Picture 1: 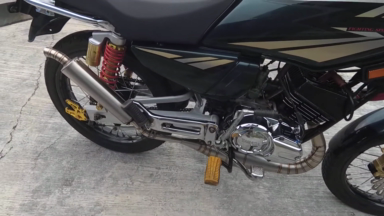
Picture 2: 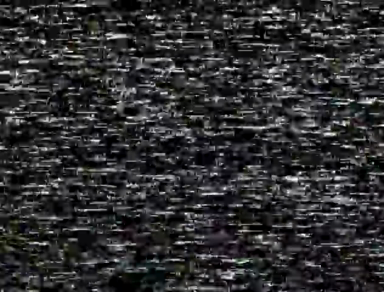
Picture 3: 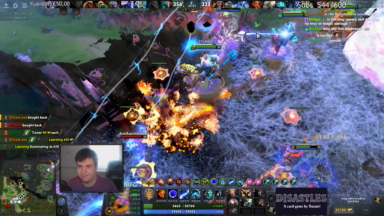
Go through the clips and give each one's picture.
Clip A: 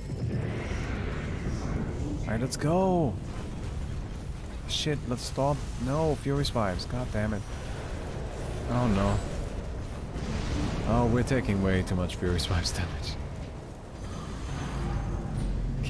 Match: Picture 3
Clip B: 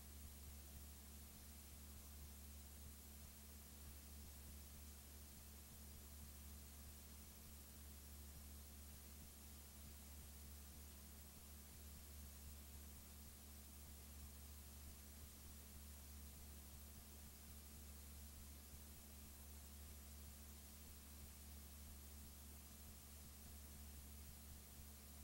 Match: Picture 2